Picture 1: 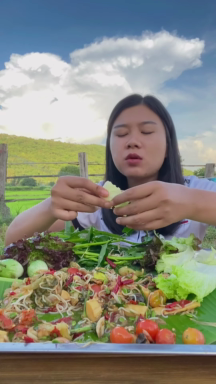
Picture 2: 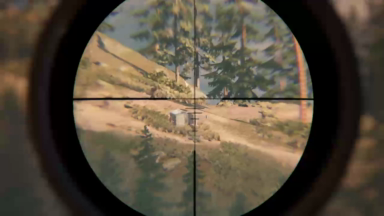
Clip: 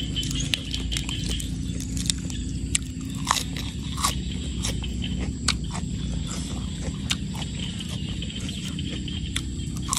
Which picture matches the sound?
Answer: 1